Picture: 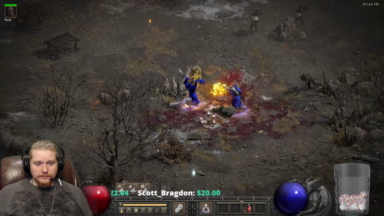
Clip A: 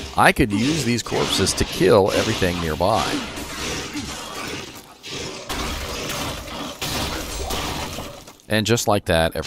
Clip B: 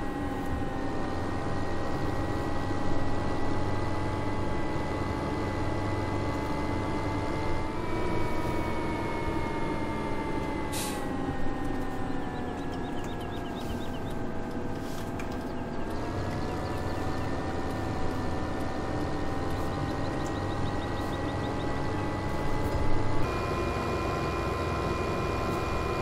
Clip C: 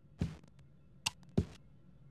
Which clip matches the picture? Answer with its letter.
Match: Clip A